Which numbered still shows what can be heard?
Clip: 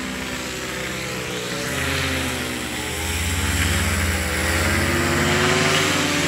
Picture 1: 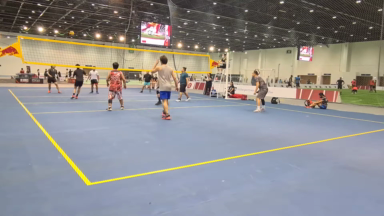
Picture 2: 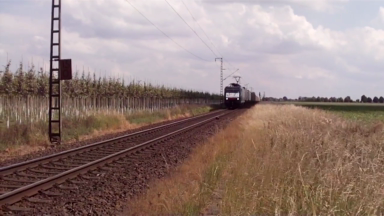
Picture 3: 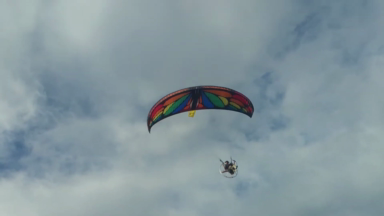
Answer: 3